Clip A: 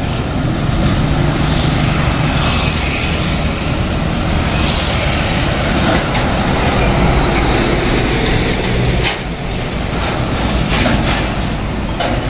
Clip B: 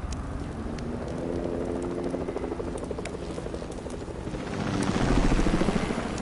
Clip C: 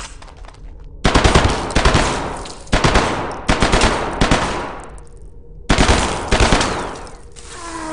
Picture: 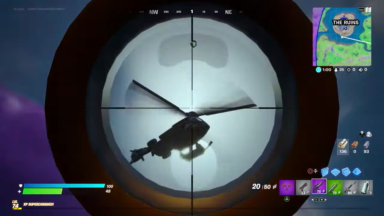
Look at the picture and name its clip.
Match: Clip B